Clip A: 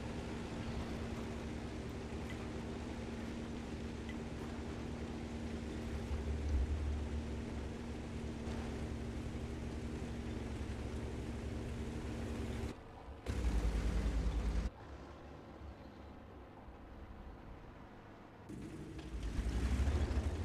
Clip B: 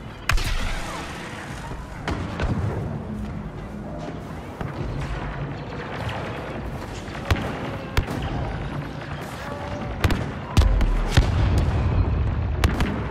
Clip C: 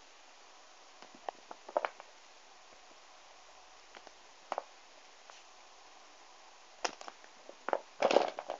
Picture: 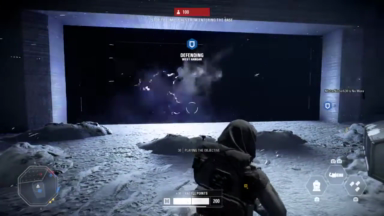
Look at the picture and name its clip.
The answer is B